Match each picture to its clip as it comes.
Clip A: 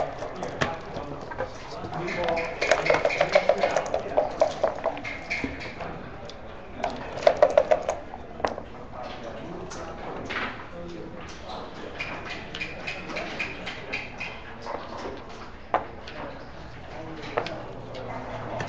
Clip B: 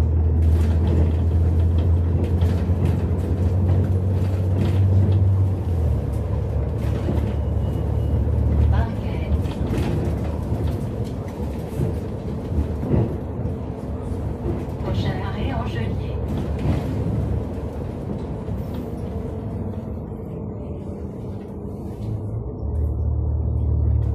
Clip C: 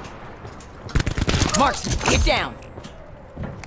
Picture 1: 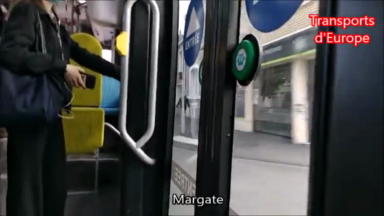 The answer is B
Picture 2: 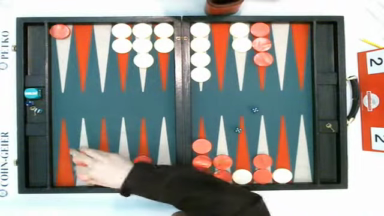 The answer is A